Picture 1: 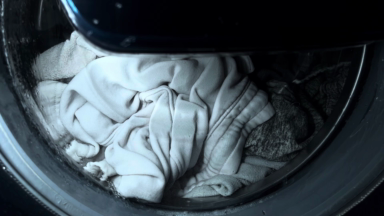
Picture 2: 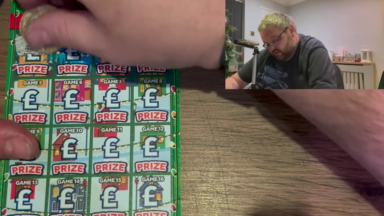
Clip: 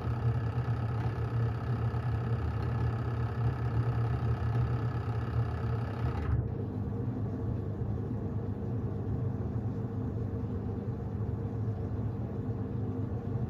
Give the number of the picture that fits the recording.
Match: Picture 1